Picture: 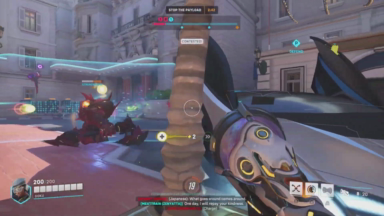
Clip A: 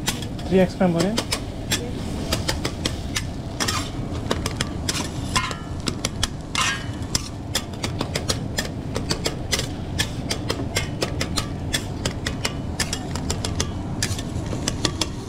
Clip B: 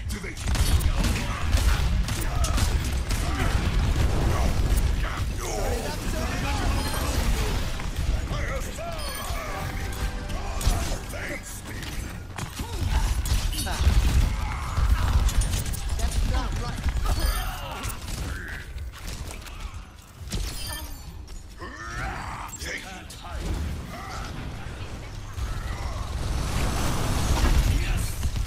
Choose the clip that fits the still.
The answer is B